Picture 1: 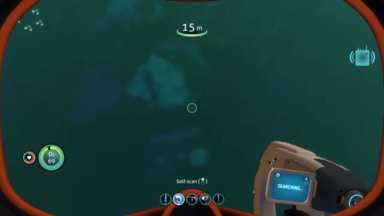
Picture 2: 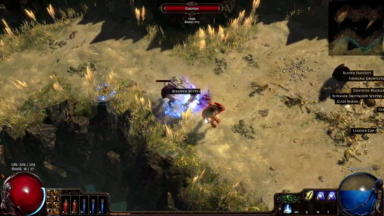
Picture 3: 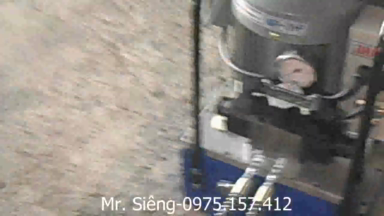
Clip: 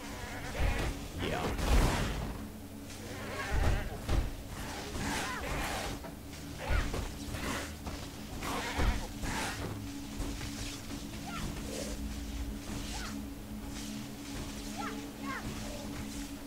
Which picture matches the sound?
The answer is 2